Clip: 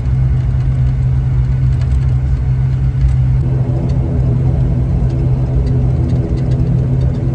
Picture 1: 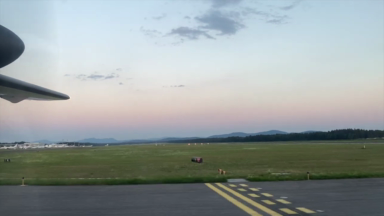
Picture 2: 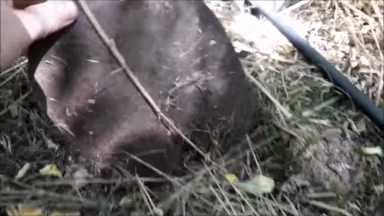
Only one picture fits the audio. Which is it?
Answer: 1